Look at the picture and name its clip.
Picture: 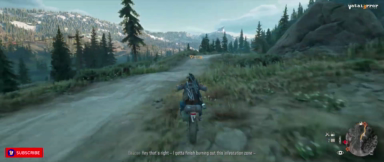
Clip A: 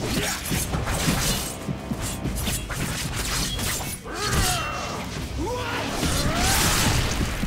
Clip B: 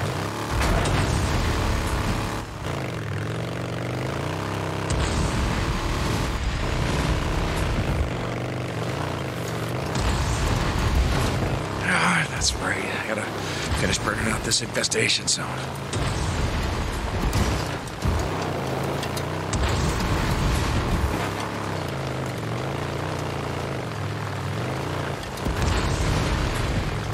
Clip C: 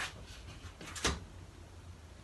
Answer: B